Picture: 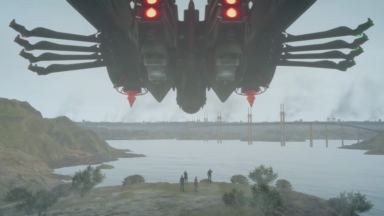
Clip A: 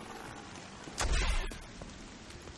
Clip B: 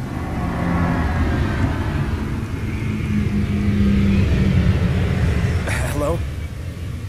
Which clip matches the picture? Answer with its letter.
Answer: B